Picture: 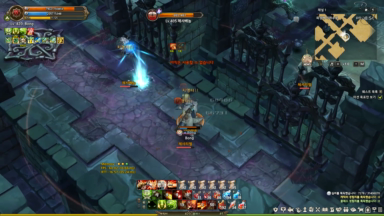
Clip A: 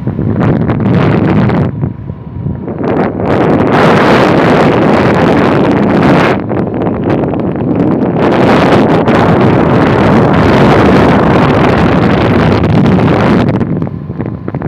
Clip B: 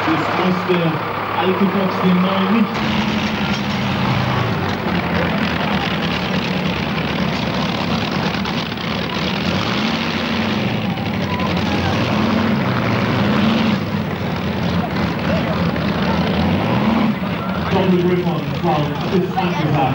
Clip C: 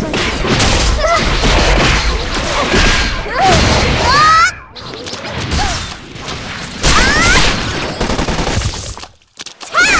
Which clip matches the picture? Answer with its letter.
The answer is C